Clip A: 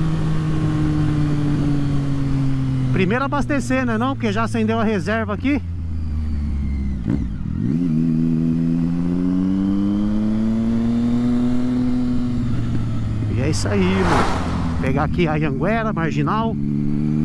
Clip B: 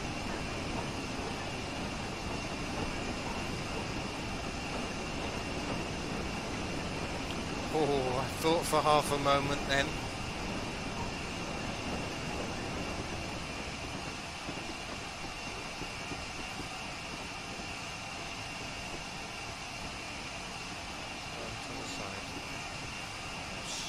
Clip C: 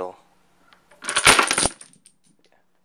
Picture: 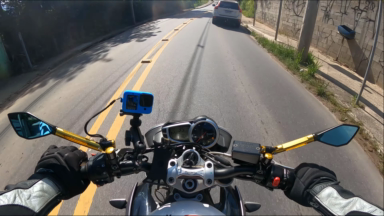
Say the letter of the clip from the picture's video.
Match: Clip A